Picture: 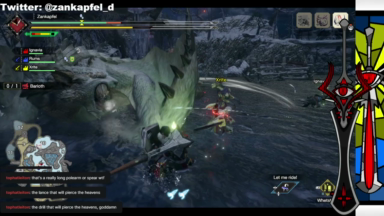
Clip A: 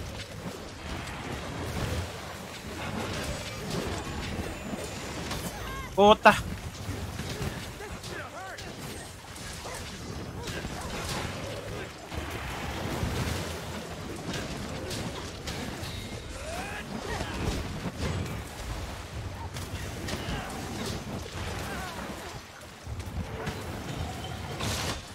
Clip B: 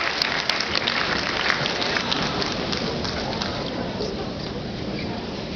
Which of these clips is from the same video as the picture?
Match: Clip A